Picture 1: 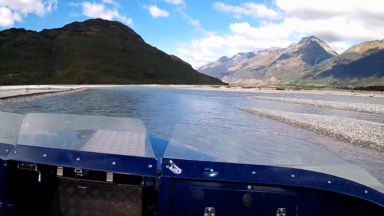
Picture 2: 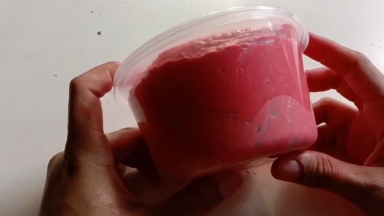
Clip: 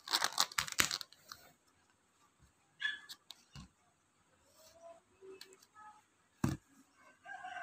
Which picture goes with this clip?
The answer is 2